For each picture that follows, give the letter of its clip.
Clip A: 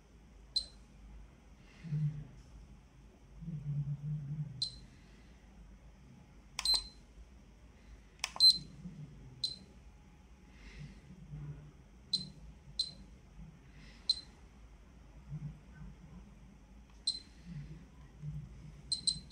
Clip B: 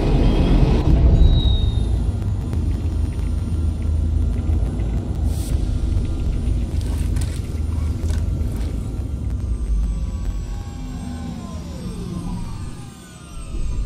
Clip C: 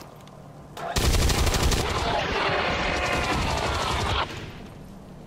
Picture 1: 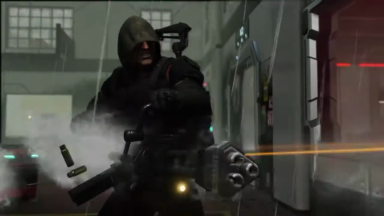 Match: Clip C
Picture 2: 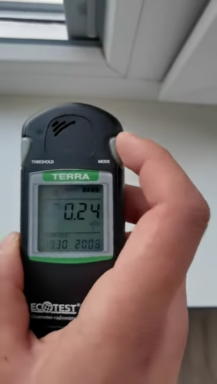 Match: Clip A